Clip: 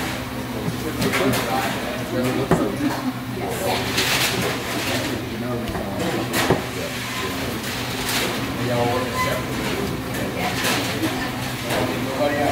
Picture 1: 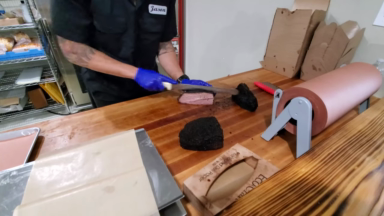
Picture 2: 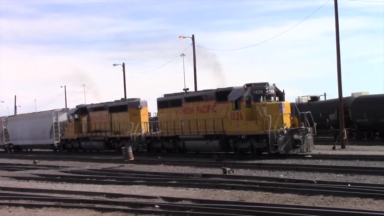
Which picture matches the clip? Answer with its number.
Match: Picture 1